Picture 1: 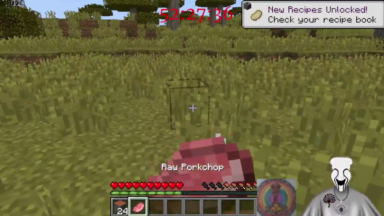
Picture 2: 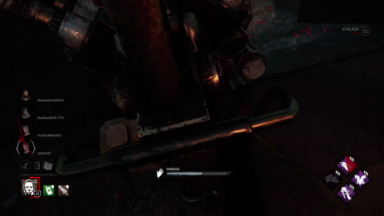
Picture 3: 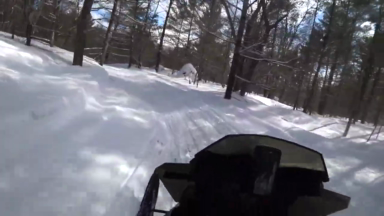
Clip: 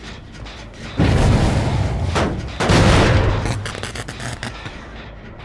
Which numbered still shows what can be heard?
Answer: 2